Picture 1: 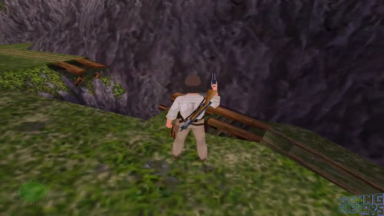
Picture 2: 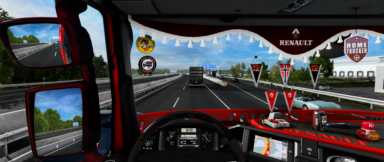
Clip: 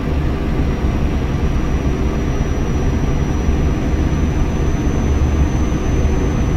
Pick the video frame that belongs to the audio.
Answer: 2